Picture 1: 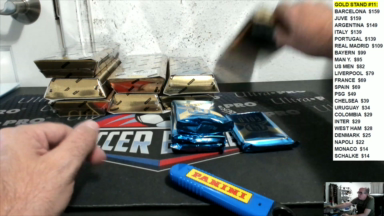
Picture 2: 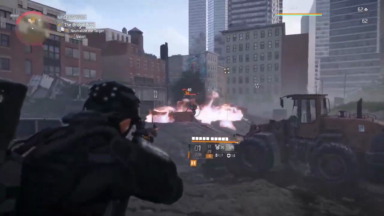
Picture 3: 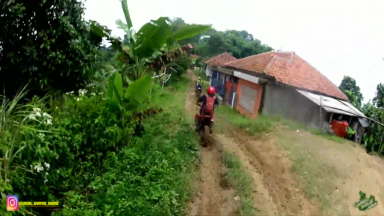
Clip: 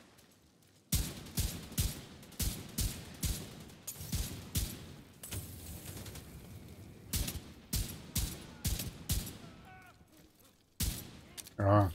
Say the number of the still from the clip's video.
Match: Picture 2